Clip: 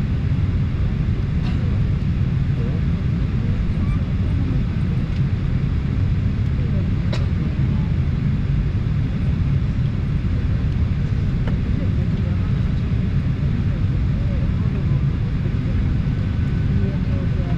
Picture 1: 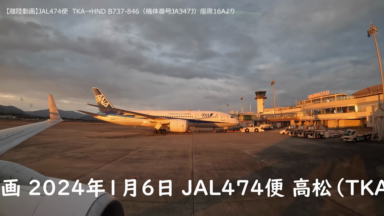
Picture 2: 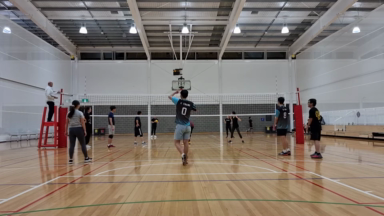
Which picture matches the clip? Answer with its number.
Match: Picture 1